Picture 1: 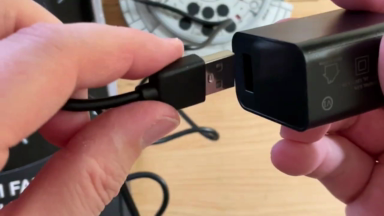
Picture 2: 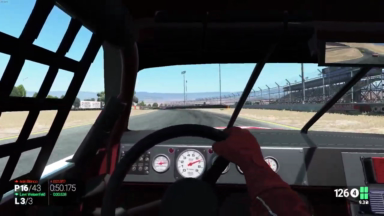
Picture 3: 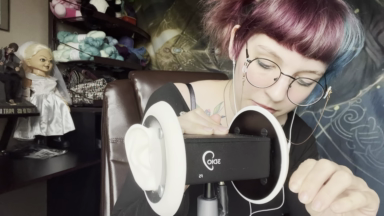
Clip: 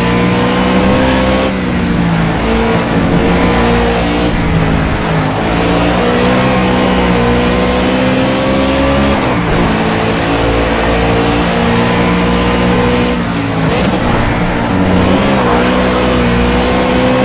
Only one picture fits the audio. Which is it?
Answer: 2